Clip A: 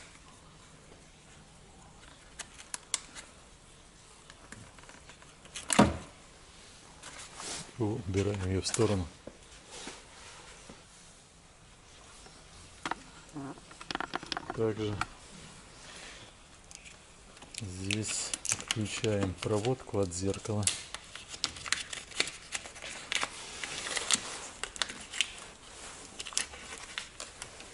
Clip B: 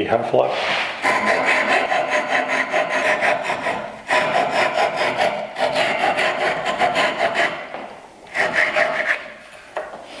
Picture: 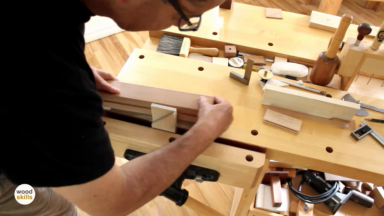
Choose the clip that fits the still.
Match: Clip B